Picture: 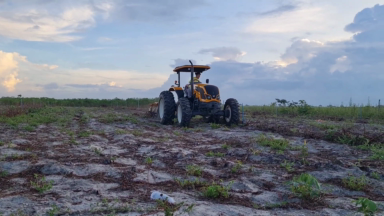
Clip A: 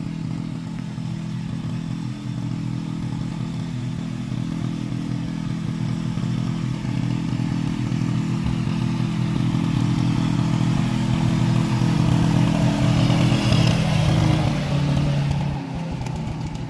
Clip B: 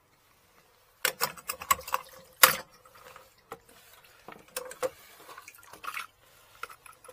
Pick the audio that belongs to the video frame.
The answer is A